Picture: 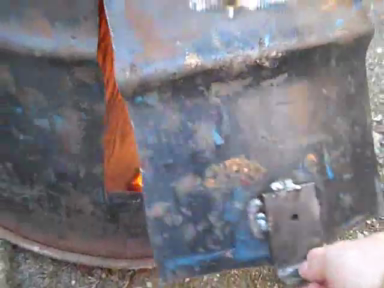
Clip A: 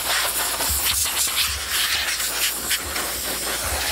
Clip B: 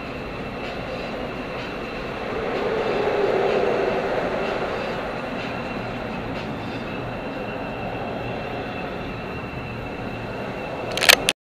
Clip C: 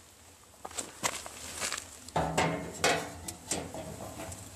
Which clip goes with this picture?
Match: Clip C